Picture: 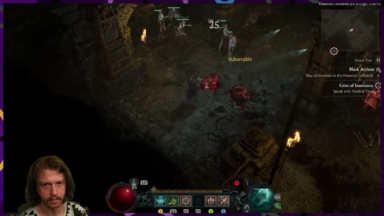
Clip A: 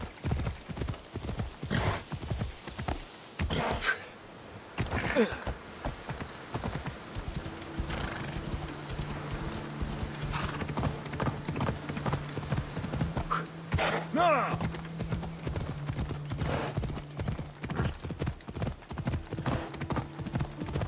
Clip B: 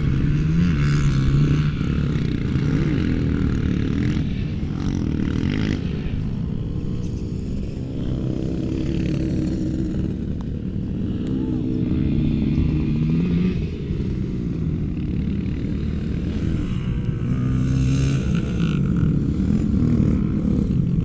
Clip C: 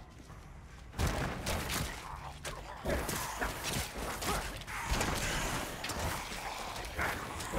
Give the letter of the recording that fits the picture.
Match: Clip C